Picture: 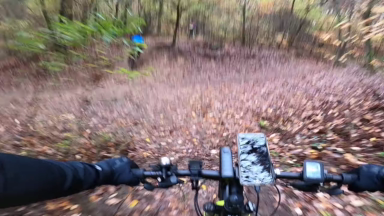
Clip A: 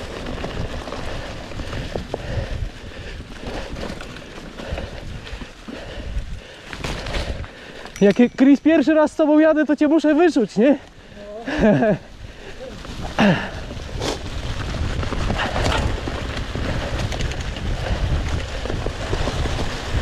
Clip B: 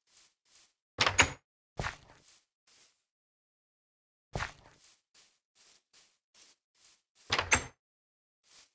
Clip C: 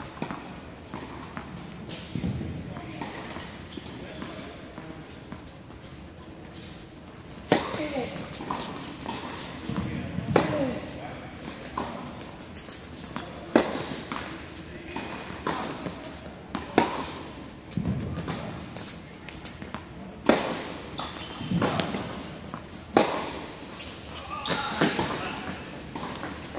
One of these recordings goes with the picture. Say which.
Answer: A